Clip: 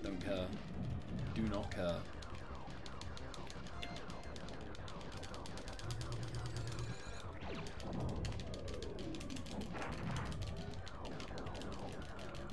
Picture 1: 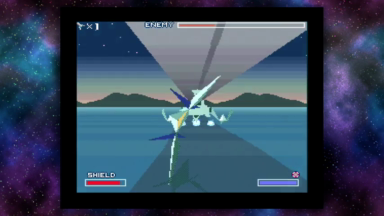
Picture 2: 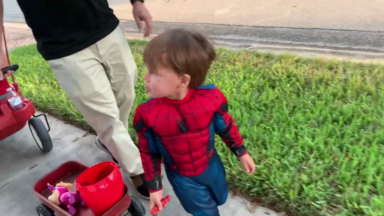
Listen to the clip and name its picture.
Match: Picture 1